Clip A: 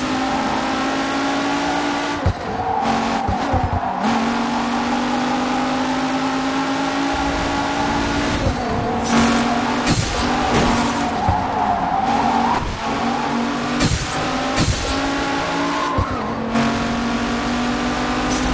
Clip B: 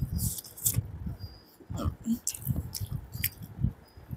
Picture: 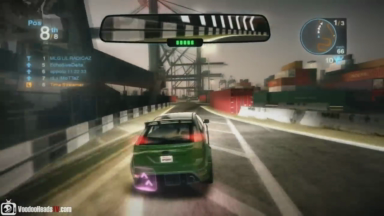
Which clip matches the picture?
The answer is A